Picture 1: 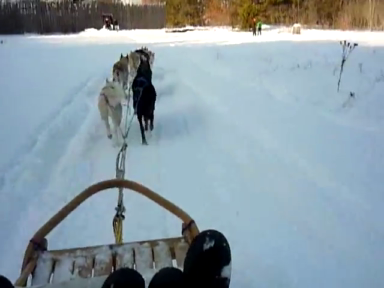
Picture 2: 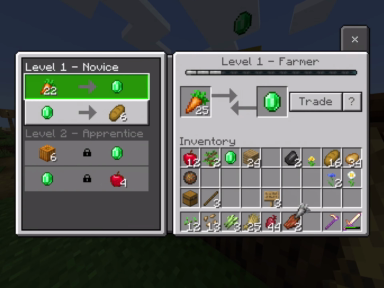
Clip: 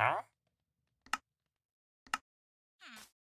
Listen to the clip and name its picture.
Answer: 2